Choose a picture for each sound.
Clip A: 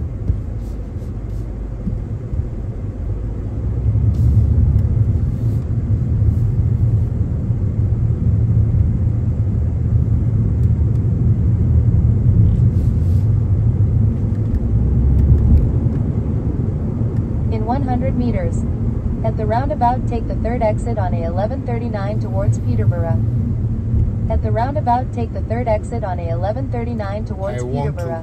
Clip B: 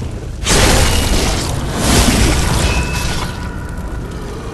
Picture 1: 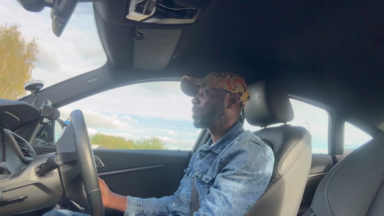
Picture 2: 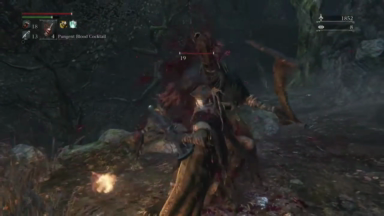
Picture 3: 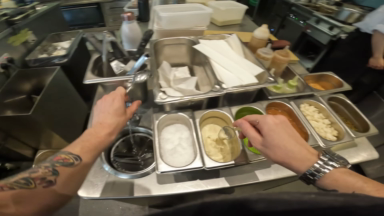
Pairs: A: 1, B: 2